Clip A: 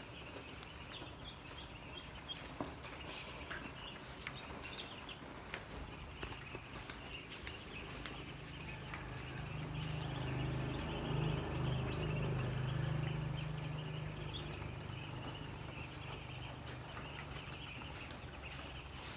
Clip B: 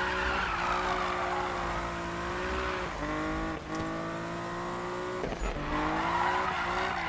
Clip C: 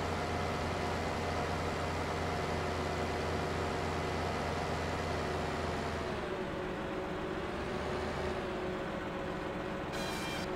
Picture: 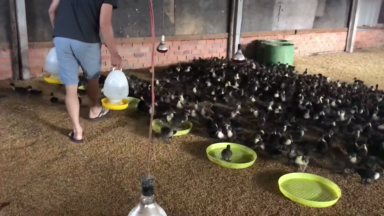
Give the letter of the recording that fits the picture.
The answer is A